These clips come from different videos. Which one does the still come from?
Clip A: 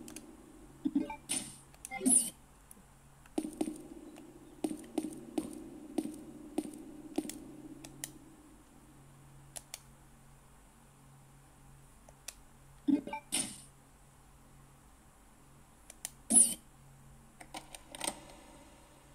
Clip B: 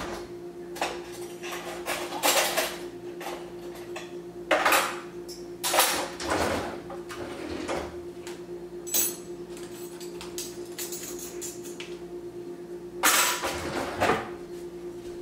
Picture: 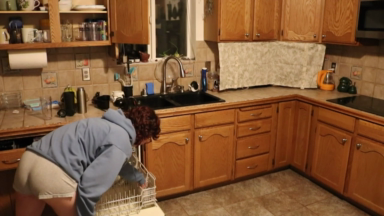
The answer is B